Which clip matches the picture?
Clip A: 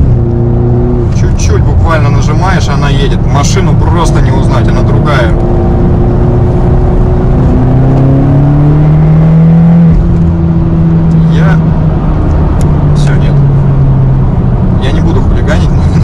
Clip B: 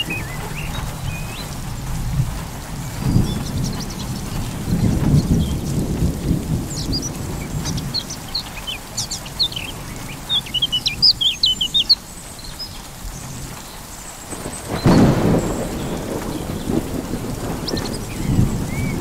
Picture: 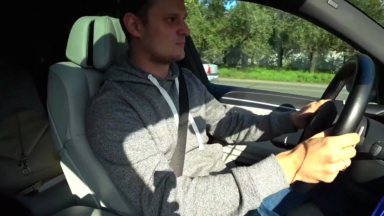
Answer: A